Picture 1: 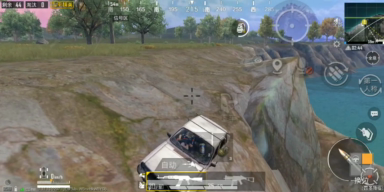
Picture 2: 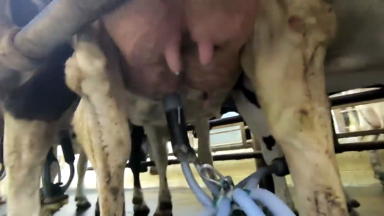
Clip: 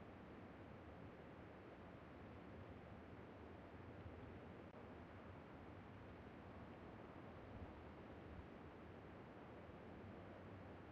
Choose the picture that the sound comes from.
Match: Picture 1